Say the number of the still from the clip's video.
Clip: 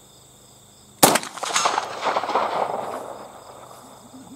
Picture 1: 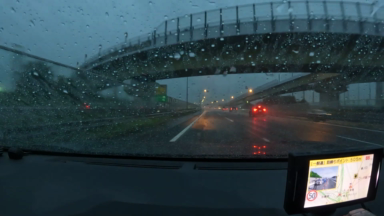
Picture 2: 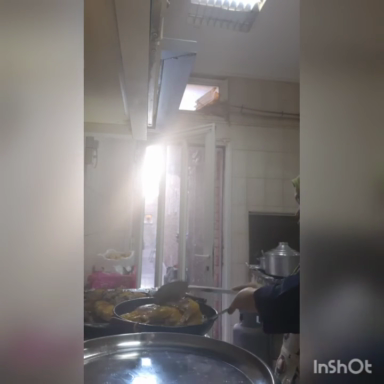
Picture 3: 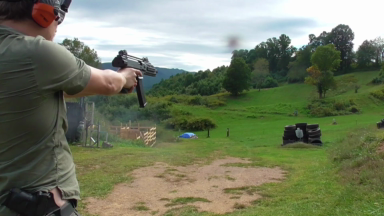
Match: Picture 3